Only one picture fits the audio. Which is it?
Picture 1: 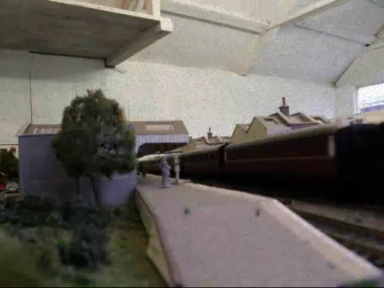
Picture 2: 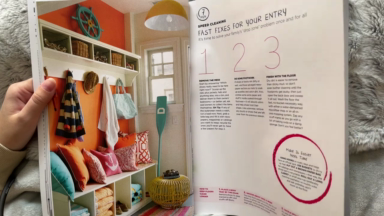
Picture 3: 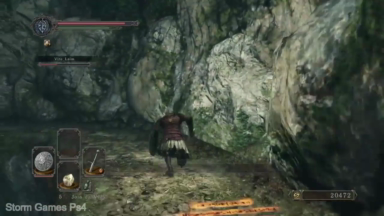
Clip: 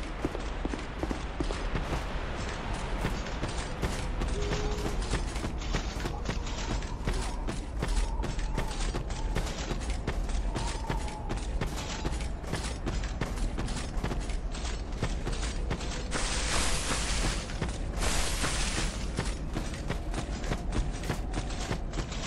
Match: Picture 3